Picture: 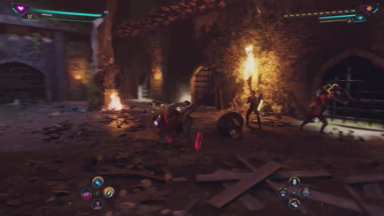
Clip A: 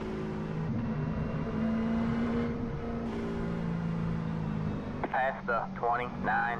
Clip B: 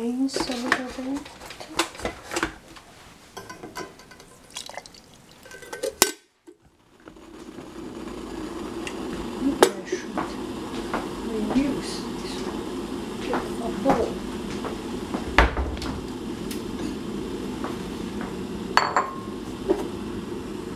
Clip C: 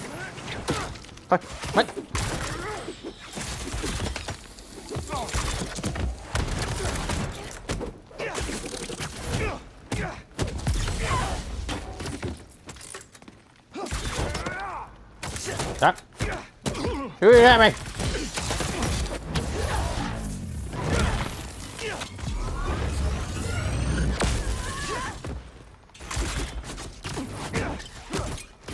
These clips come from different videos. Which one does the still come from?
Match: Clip C